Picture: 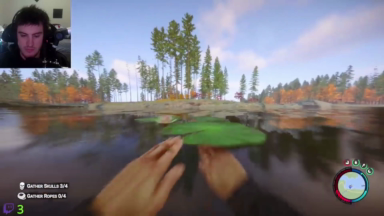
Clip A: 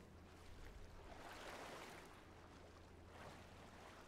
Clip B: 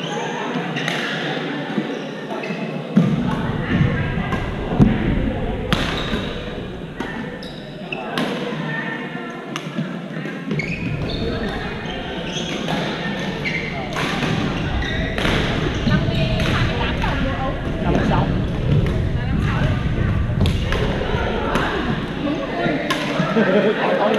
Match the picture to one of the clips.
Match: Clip A